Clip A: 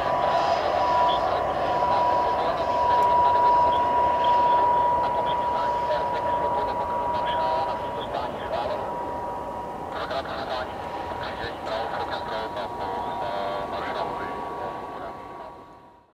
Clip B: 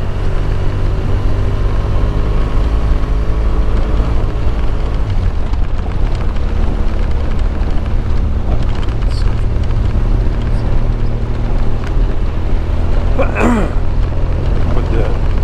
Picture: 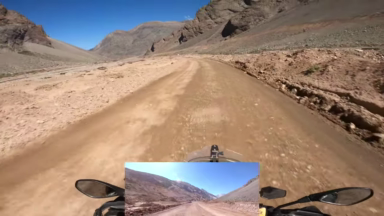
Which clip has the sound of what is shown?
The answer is B